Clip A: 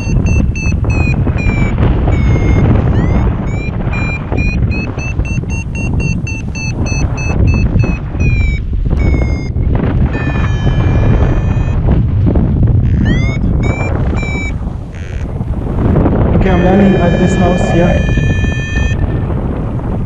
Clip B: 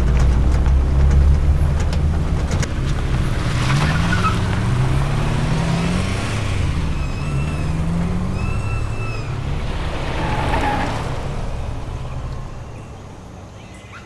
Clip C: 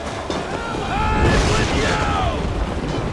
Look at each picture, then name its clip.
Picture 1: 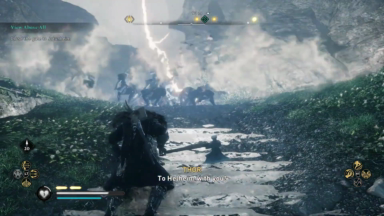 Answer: C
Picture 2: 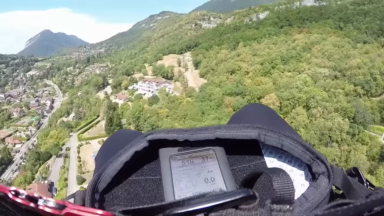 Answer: A